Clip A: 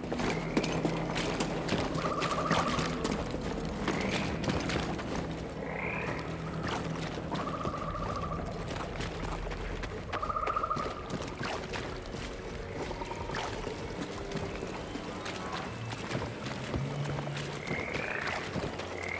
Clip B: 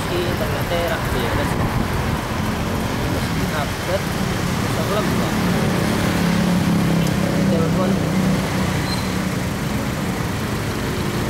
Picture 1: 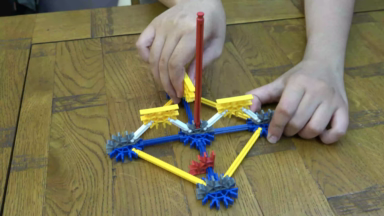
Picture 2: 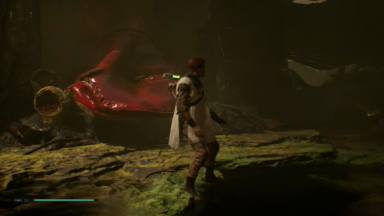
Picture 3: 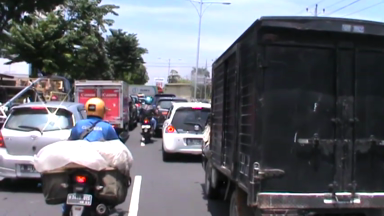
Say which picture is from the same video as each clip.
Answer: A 2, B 3